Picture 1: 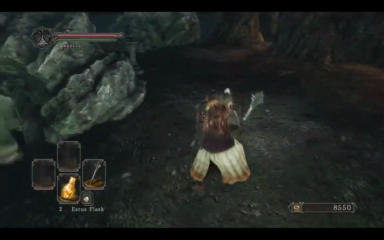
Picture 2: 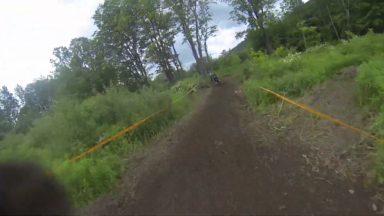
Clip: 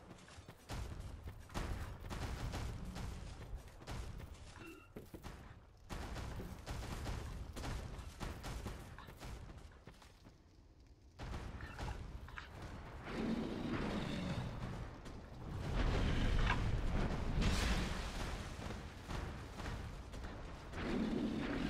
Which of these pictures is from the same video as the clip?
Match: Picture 1